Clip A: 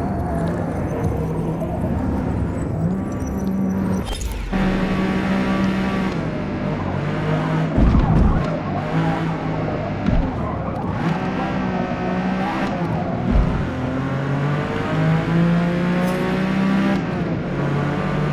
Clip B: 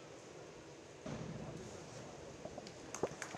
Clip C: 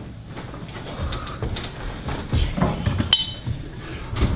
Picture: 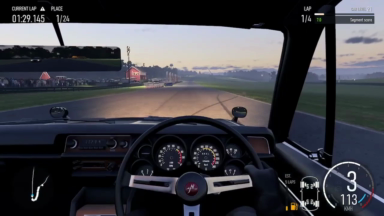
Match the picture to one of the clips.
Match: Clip A